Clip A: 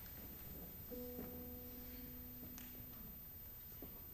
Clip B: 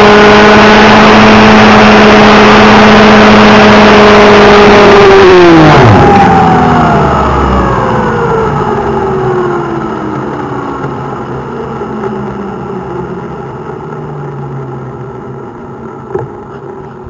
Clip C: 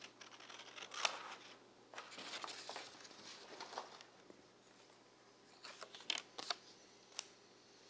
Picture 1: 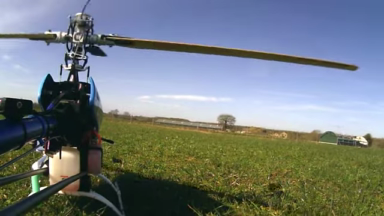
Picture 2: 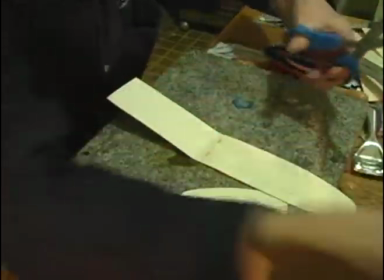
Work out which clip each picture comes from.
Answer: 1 B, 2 C